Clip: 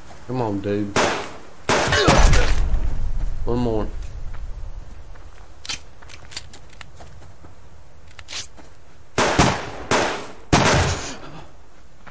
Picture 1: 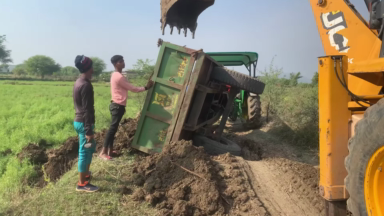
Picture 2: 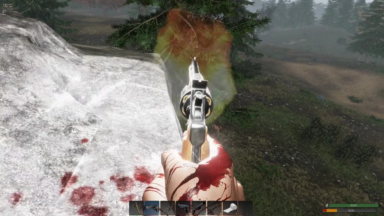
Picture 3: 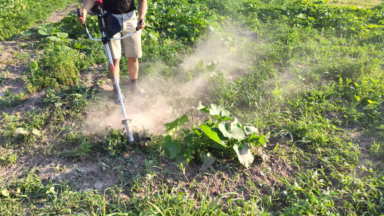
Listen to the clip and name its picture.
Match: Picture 2